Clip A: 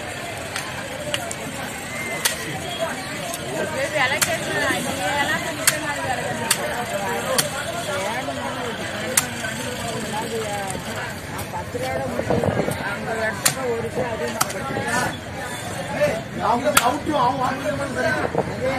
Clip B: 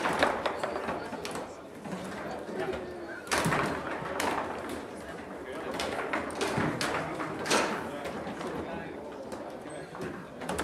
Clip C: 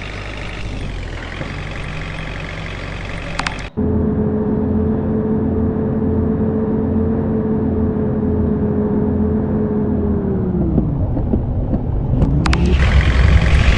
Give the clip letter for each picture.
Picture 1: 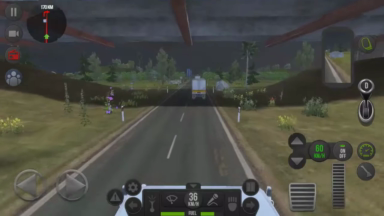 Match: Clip C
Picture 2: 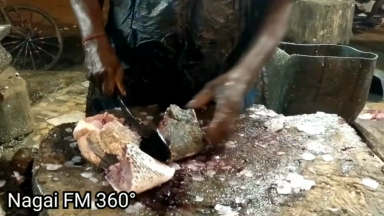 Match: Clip A